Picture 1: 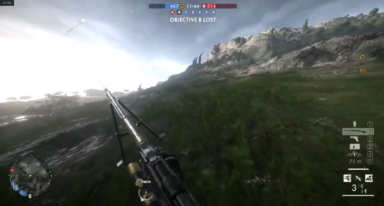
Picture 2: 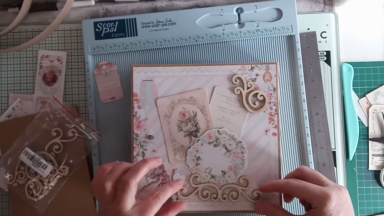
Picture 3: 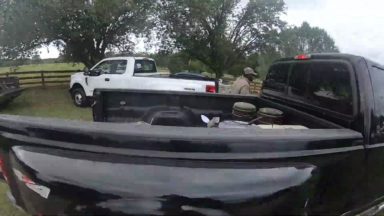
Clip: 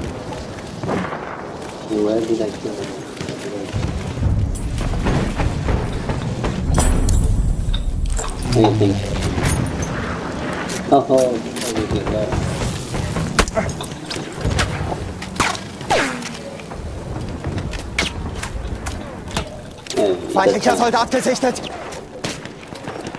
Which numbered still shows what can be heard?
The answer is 1